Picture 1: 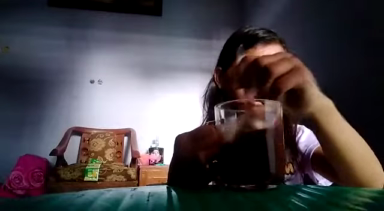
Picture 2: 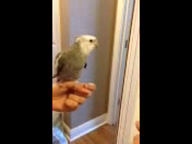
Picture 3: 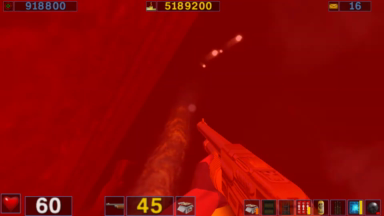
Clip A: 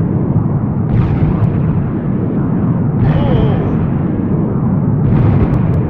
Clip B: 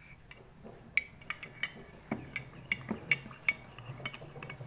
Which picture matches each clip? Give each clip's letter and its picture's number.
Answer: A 3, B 1